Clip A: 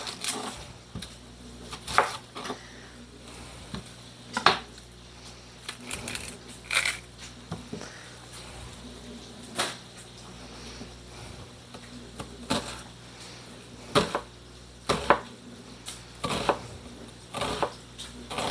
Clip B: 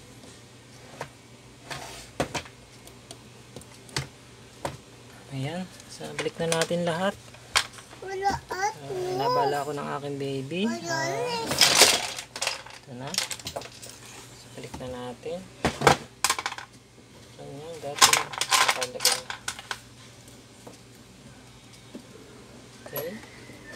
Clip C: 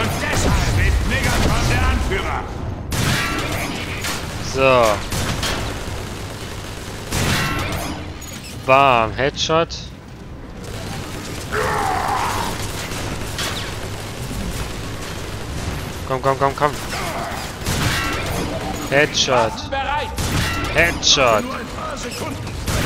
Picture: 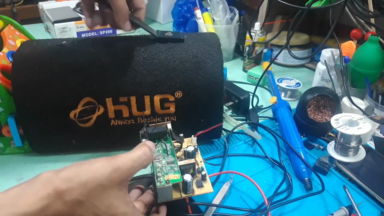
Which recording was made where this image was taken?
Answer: B